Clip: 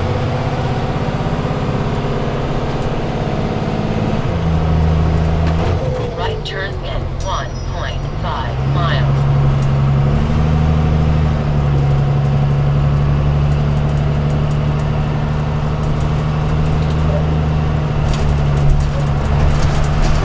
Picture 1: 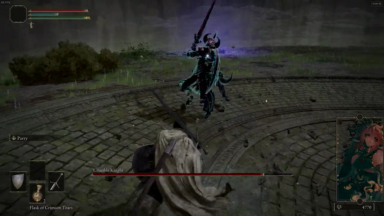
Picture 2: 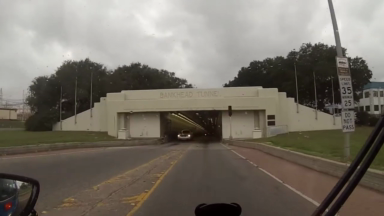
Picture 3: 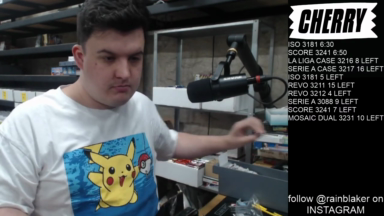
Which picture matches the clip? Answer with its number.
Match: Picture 2